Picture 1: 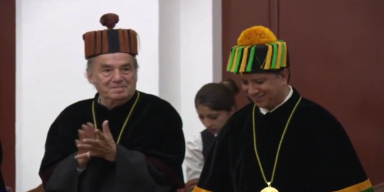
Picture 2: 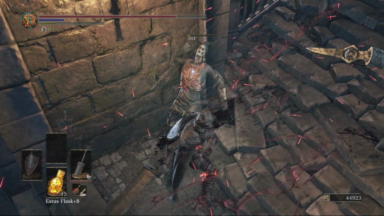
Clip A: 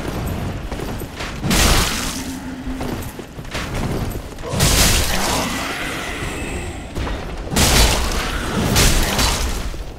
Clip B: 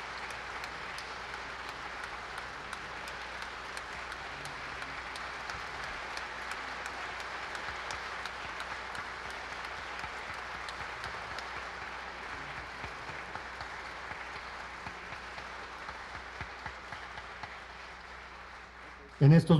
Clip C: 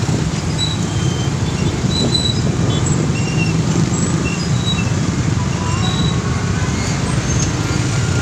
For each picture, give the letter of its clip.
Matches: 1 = B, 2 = A